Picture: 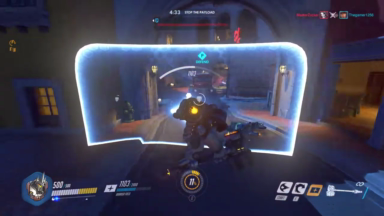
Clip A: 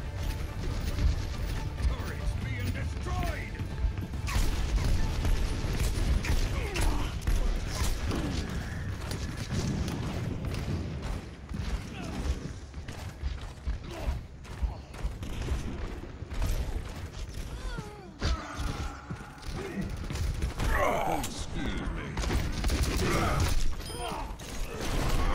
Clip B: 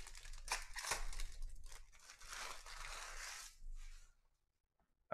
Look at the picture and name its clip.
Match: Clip A